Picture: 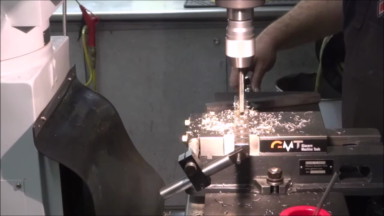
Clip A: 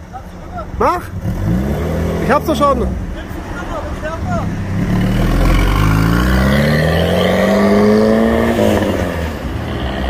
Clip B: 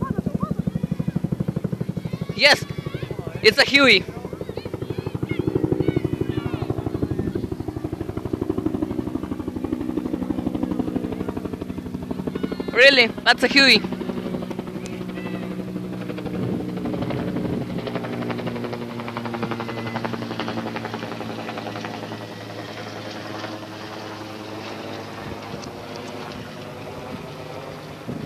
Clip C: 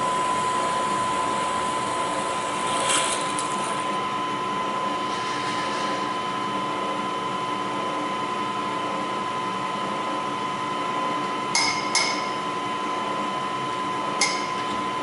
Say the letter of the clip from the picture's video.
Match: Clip C